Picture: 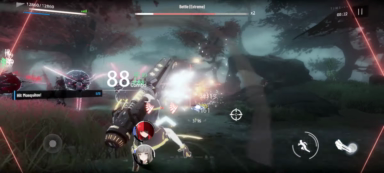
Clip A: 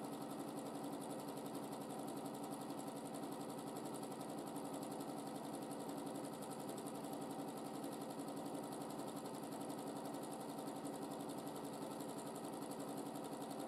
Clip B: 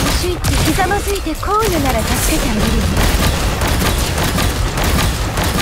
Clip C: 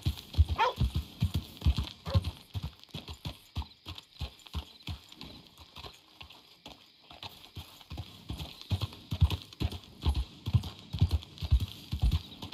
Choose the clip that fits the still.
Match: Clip B